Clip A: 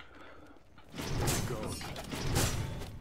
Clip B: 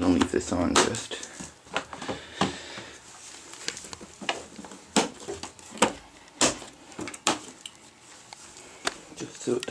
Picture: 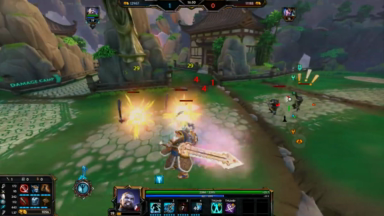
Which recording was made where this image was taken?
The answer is A